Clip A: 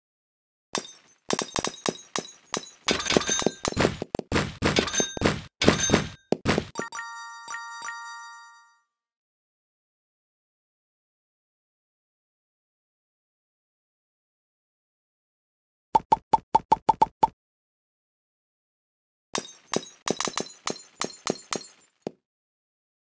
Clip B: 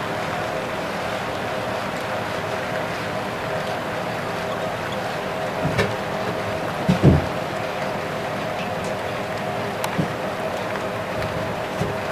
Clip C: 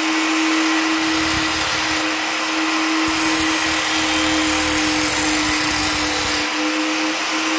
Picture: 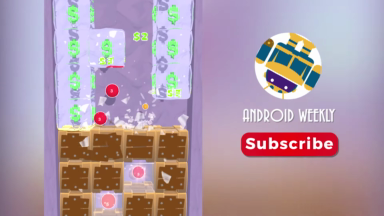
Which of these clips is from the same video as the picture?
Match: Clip A